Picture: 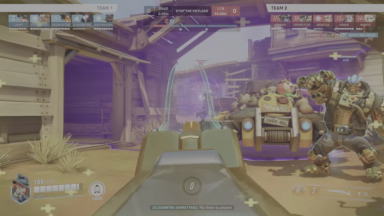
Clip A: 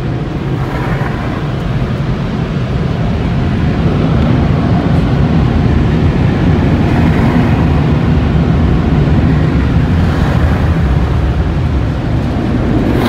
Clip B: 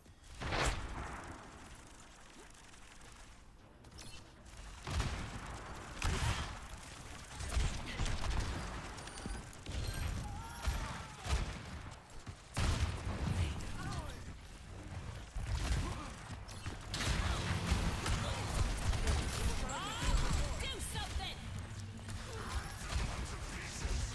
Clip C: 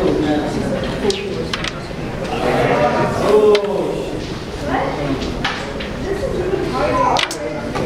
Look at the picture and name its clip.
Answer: B